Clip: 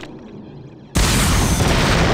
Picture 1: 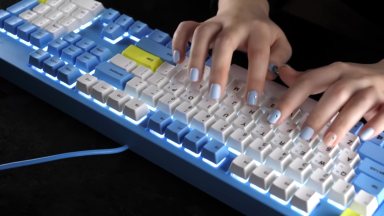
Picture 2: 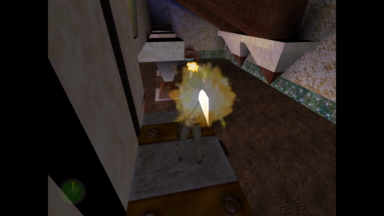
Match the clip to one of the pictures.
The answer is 2